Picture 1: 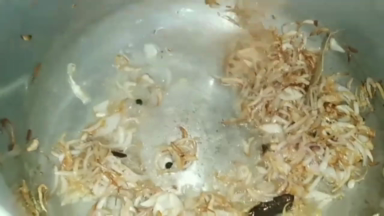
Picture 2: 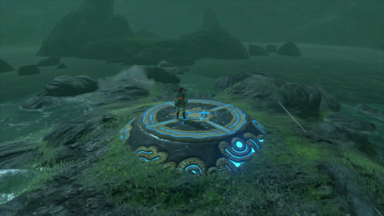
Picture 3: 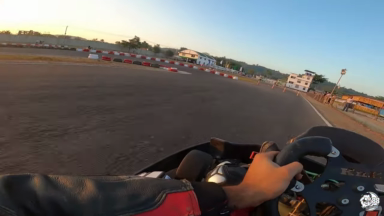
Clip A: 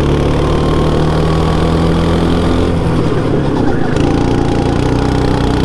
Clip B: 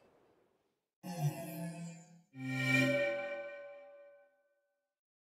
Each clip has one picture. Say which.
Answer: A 3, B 2